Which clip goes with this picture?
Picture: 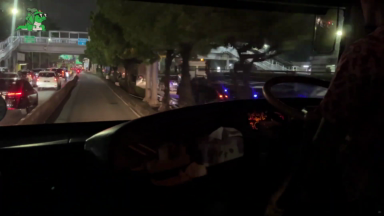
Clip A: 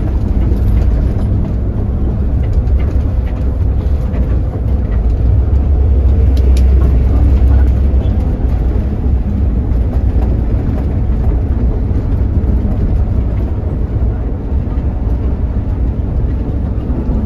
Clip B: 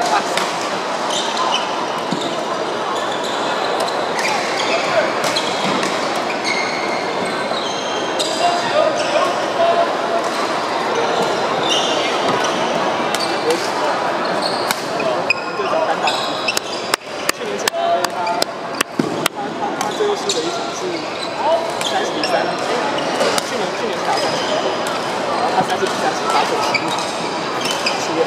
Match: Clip A